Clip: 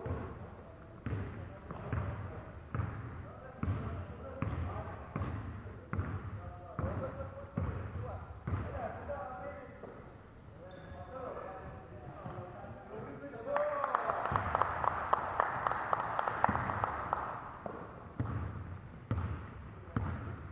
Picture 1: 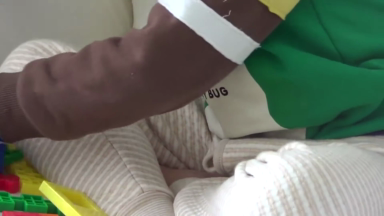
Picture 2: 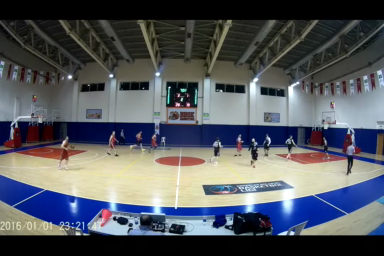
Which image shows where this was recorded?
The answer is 2